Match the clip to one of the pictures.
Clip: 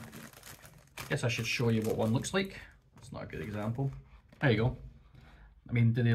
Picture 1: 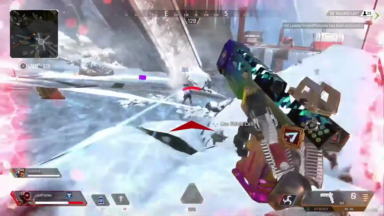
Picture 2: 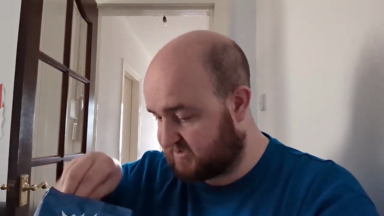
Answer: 2